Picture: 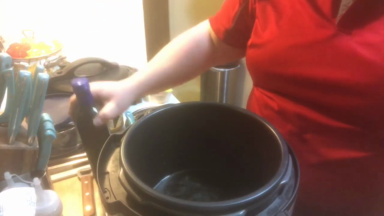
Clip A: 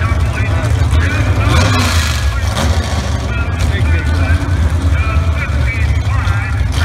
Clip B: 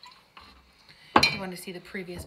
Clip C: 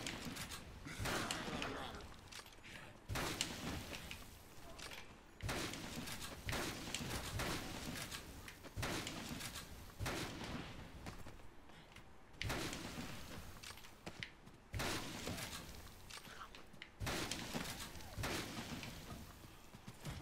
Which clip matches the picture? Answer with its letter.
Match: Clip B